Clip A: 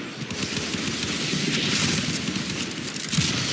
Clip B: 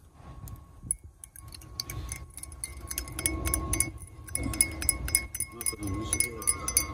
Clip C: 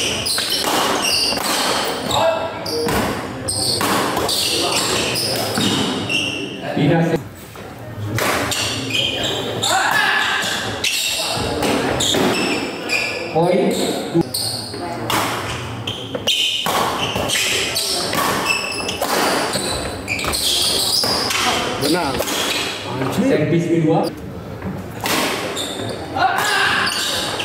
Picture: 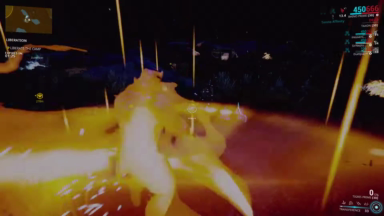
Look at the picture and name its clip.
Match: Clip A